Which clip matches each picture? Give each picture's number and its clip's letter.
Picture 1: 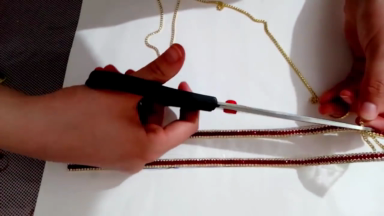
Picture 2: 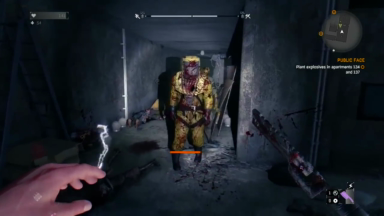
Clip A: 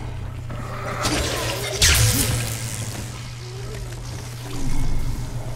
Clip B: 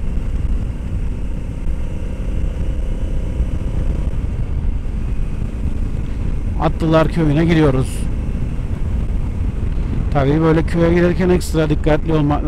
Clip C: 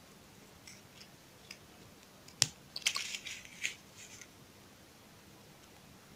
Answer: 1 C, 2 A